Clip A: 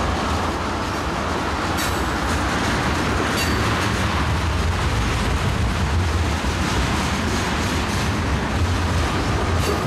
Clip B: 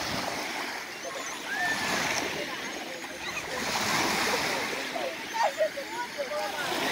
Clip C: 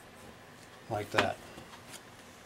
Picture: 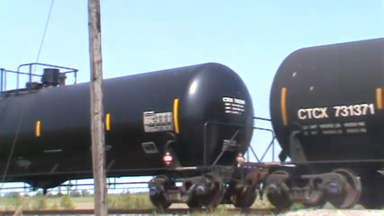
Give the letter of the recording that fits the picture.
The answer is A